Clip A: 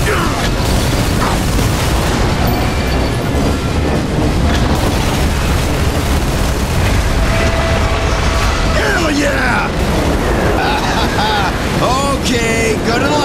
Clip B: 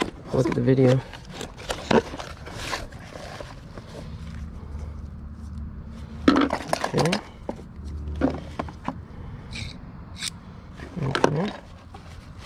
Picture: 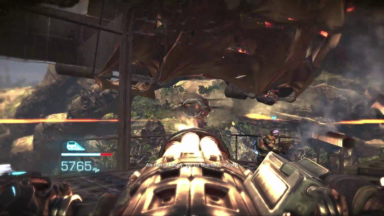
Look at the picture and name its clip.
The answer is A